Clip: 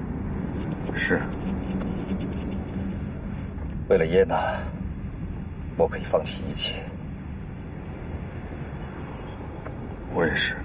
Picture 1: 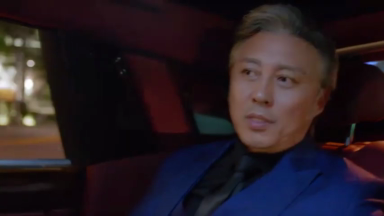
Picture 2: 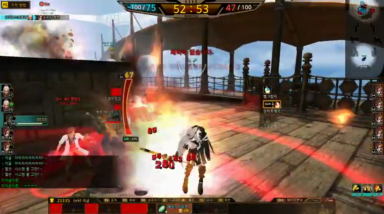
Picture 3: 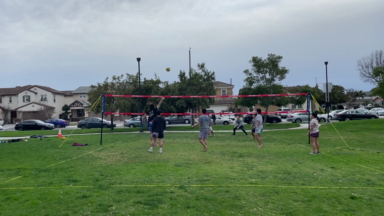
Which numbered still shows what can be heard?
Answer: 1